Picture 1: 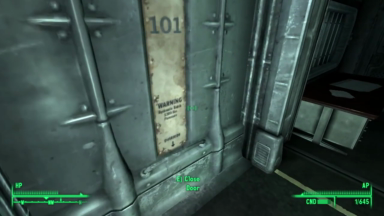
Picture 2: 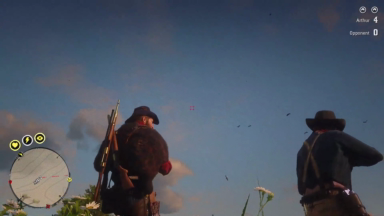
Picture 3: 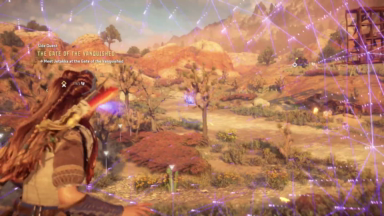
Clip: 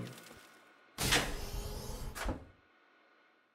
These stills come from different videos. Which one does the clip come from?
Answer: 1